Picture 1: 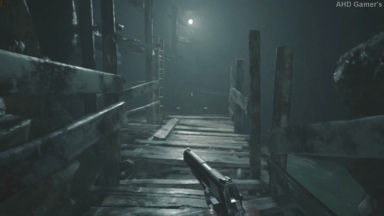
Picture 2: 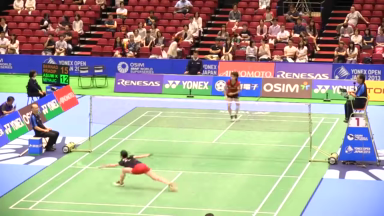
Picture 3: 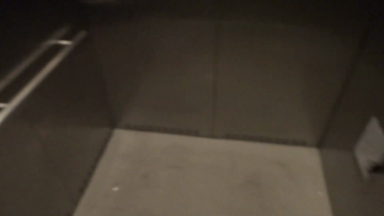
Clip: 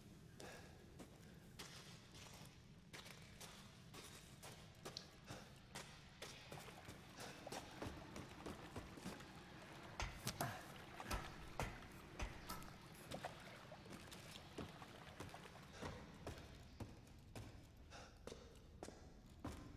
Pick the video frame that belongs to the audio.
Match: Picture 1